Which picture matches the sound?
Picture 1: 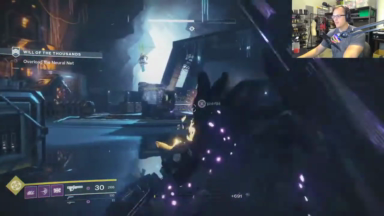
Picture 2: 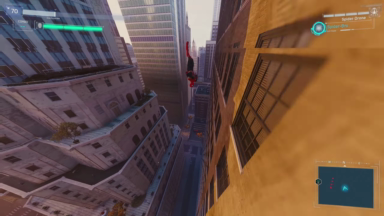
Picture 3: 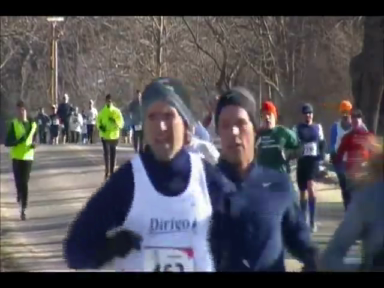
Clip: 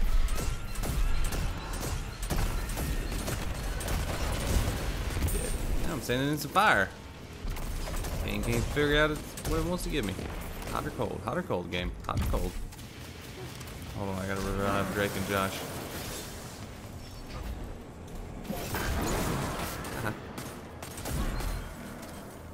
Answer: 1